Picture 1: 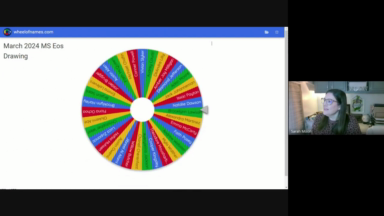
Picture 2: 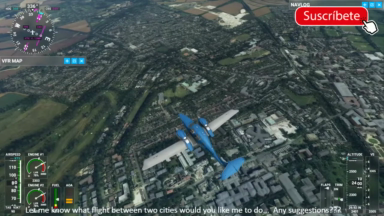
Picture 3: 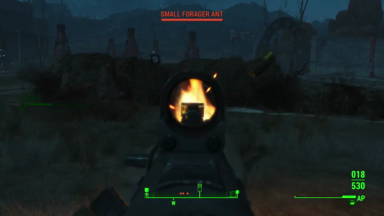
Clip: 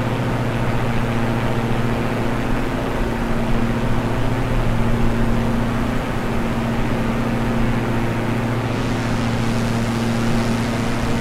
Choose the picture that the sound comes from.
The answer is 2